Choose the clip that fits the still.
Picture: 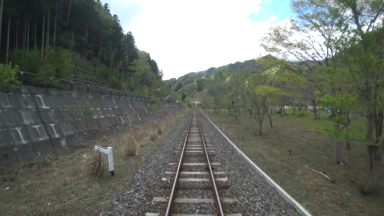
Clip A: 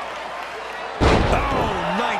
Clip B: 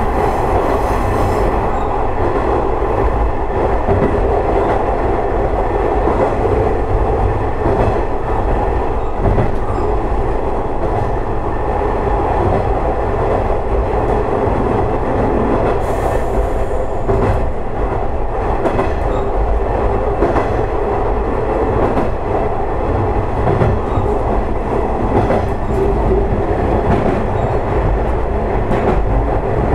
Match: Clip B